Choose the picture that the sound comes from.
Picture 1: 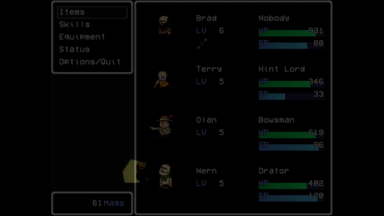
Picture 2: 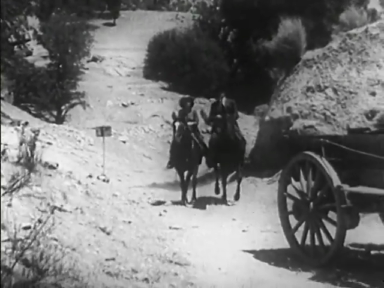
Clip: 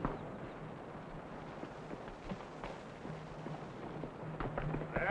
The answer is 2